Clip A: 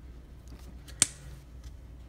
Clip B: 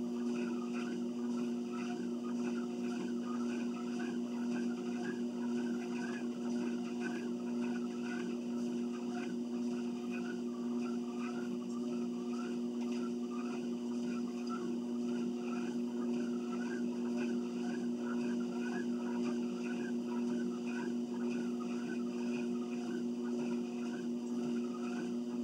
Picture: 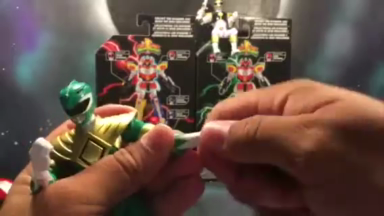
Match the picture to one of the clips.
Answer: A